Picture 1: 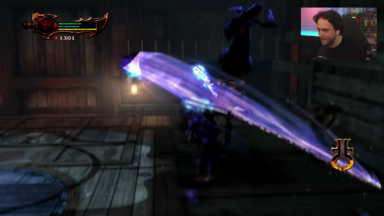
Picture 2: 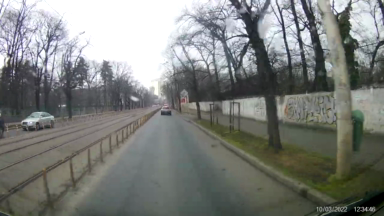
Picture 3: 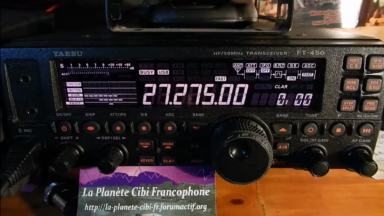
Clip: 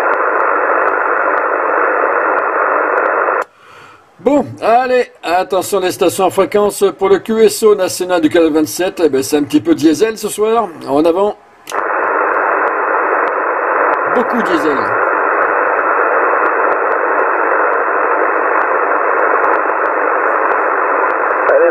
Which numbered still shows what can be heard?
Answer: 3